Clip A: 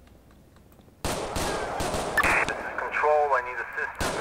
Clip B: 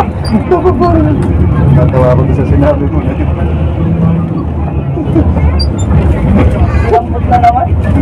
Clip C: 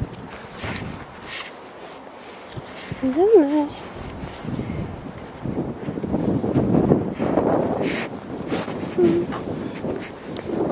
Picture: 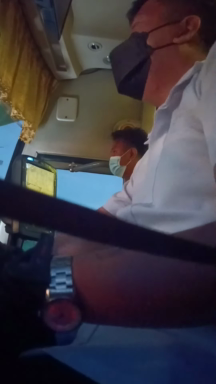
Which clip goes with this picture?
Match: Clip B